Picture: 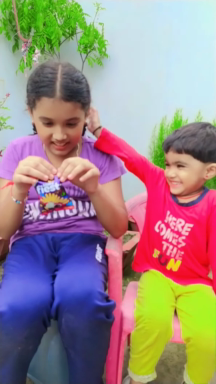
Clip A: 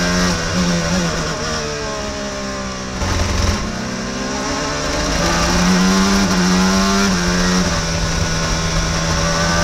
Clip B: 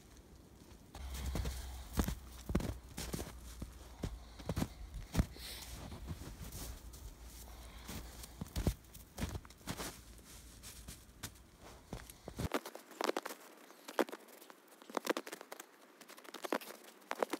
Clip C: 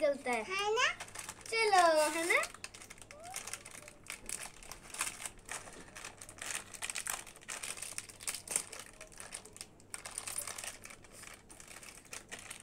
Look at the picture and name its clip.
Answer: C